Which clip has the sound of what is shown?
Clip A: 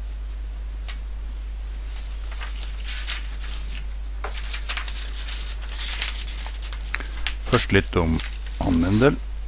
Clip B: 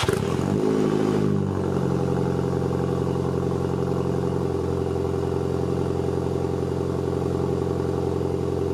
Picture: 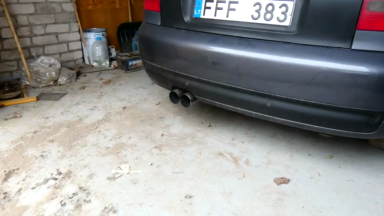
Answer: B